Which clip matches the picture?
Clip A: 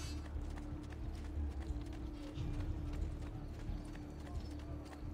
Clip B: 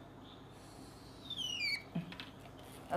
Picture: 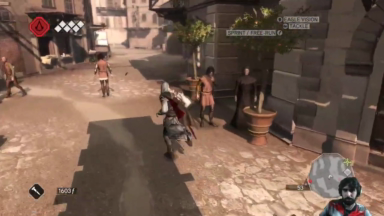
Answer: A